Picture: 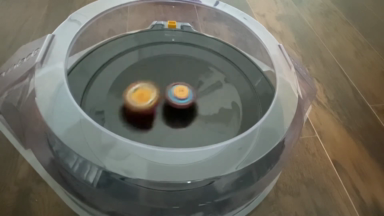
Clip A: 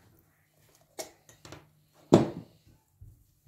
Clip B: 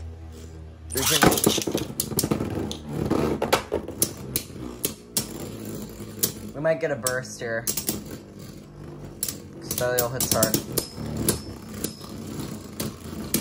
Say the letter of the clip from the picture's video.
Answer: B